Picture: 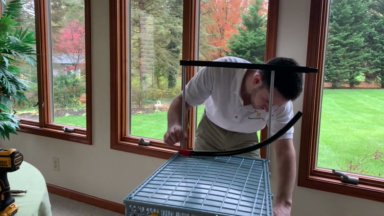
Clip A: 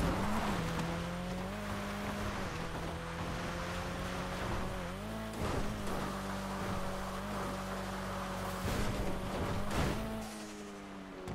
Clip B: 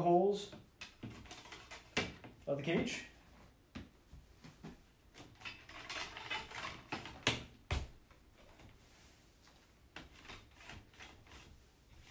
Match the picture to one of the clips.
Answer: B